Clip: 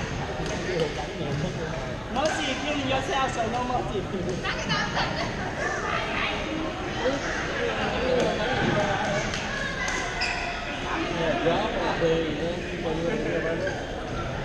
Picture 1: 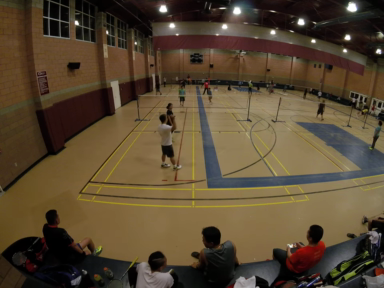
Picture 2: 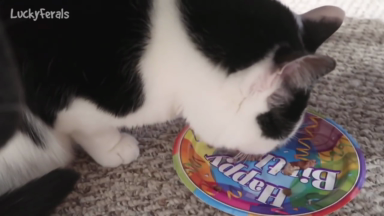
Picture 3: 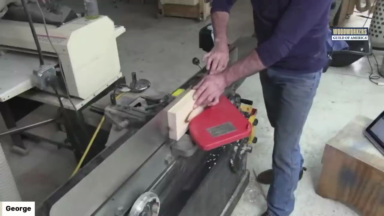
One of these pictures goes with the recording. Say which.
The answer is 1